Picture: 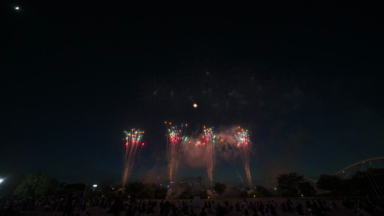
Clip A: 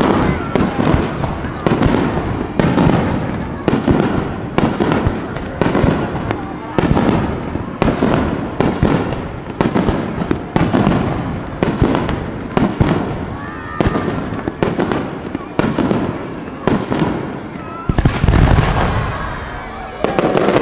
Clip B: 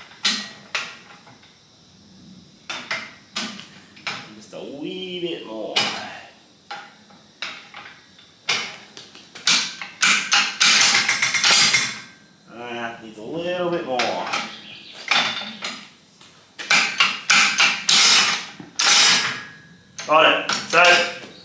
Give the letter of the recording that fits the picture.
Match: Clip A